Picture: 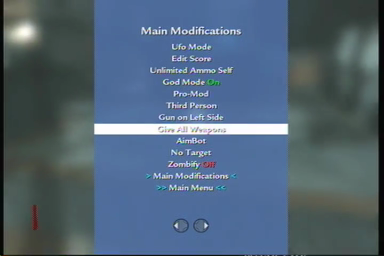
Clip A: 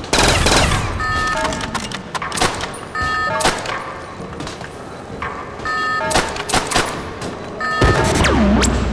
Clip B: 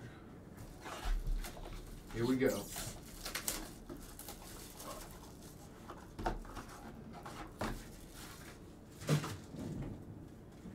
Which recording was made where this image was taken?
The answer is A